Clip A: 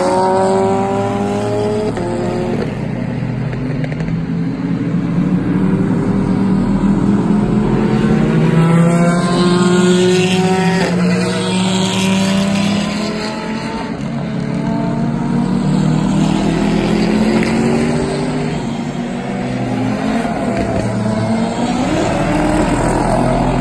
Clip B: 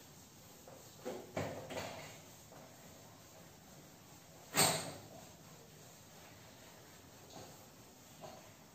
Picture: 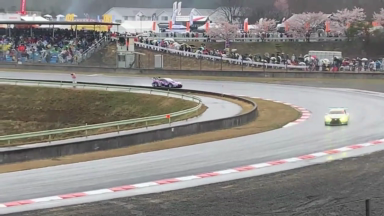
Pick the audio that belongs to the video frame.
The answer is A